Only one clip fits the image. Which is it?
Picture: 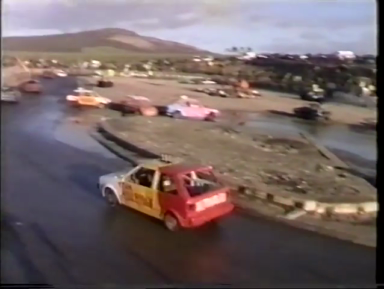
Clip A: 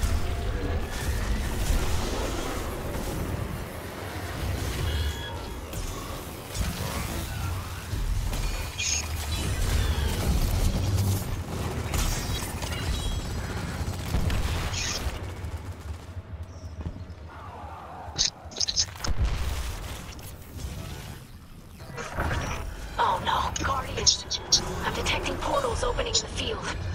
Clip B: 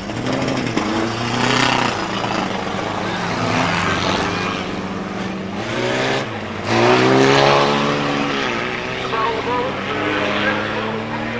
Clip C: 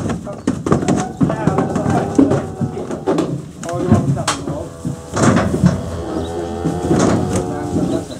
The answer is B